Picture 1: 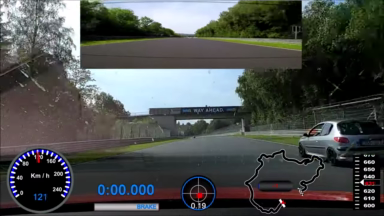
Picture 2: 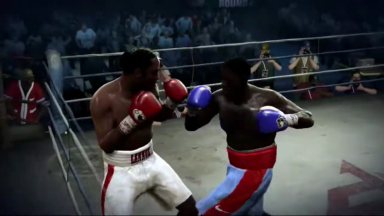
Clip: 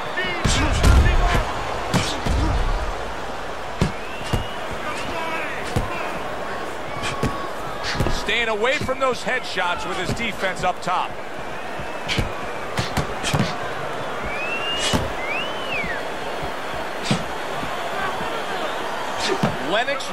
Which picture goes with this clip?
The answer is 2